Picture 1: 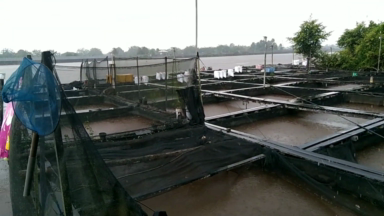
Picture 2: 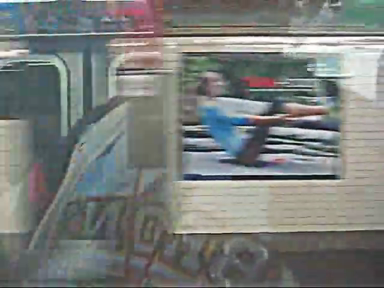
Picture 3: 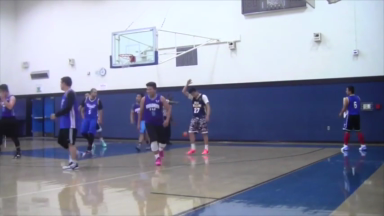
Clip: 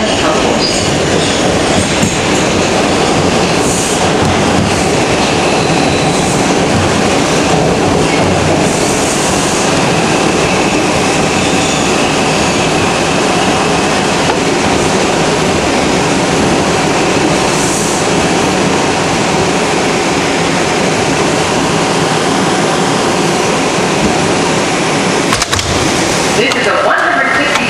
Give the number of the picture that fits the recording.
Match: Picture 2